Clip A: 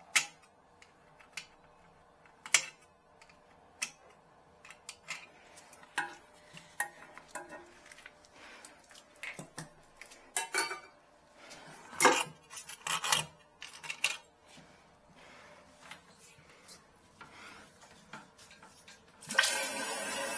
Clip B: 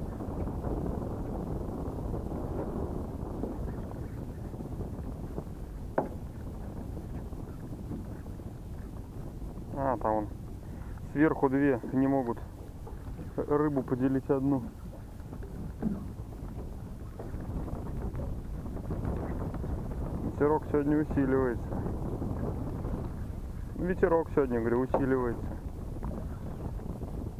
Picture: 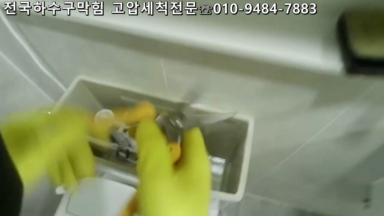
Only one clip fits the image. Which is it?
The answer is A